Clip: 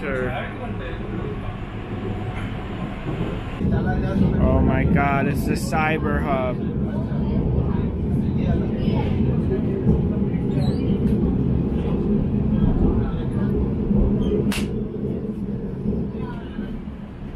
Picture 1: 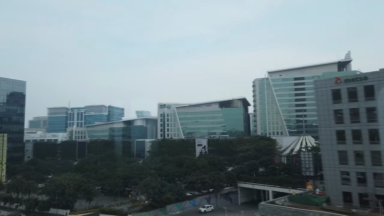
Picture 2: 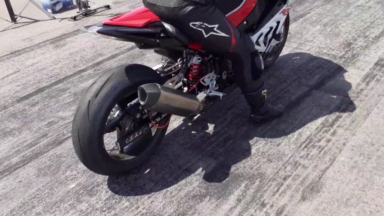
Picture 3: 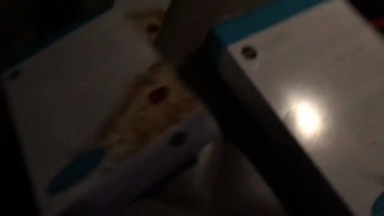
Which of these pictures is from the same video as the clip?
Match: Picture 1